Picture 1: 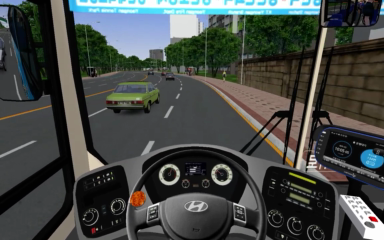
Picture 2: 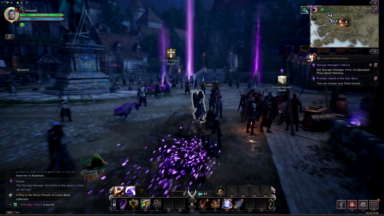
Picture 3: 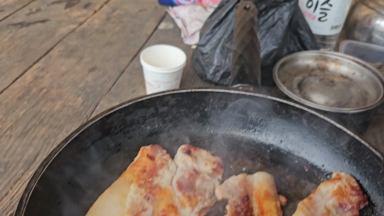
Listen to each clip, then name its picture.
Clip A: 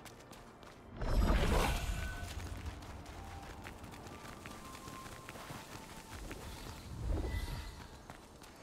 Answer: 2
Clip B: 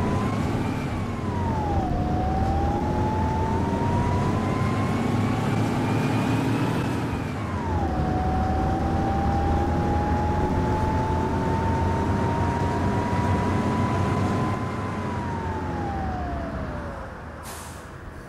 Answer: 1